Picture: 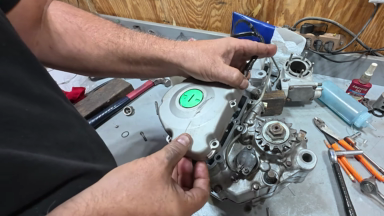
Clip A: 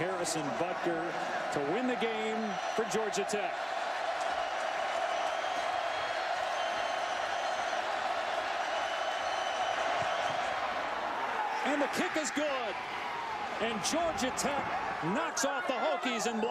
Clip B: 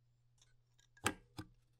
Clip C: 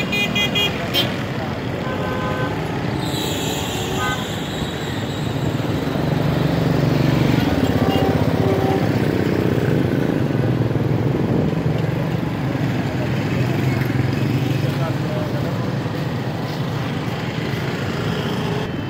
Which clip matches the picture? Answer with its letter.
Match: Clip B